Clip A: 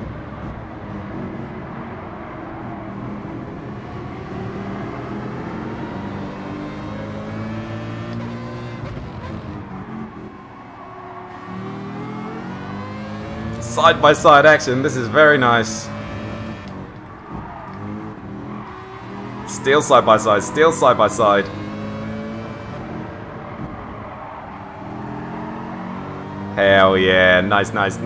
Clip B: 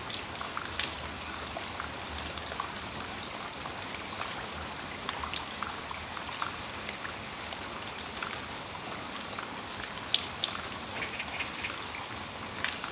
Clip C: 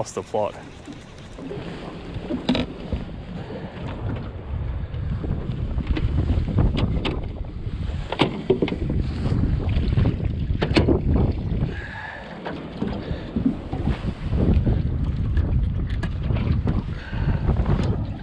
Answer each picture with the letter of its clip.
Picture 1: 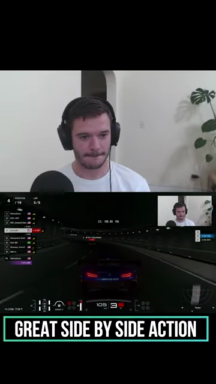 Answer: A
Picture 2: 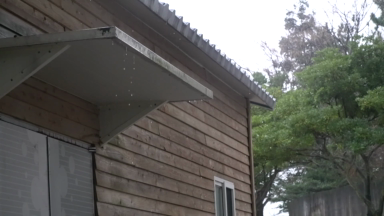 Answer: B